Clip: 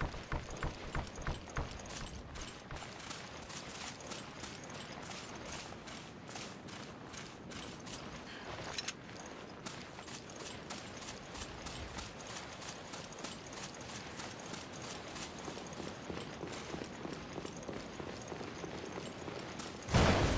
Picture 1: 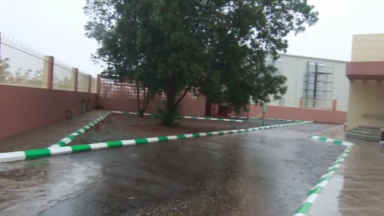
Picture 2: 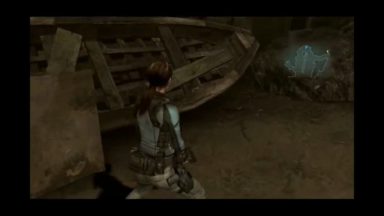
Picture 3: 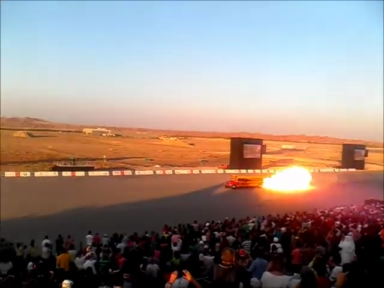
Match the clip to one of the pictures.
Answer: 2